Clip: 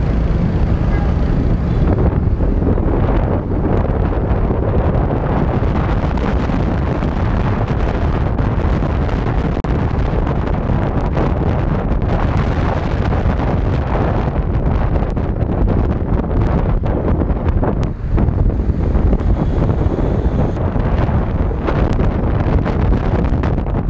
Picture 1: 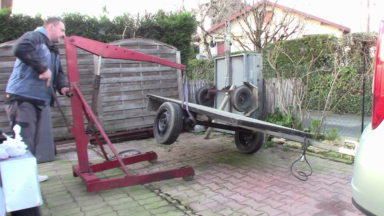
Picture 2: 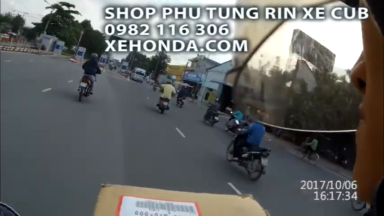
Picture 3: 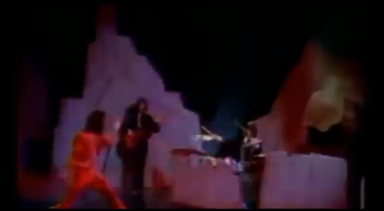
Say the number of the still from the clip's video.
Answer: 2